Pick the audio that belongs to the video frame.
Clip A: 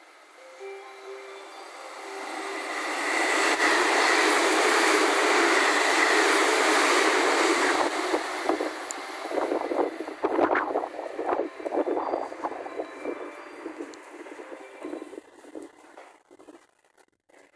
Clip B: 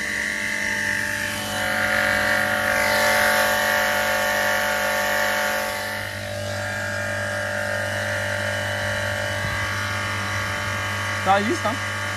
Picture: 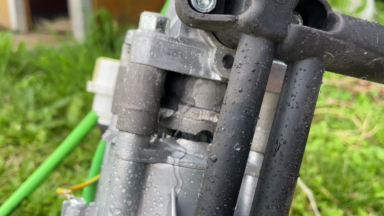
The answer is B